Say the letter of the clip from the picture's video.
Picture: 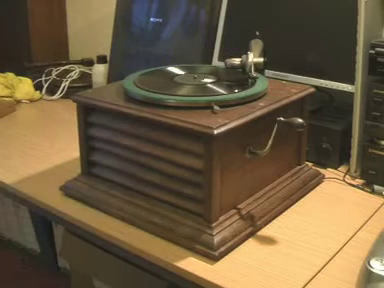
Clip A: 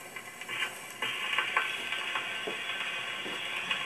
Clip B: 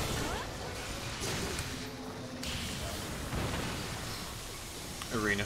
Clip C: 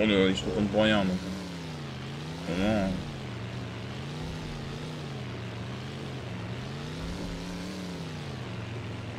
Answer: A